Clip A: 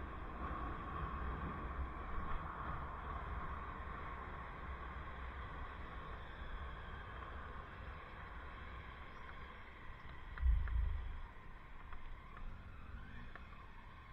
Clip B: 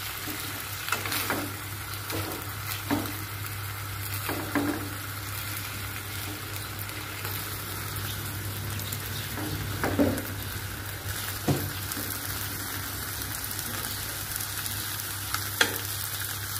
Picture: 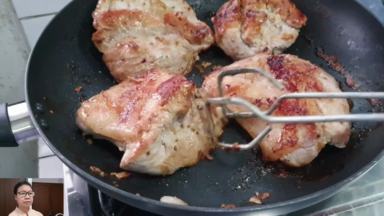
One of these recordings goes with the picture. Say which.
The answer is B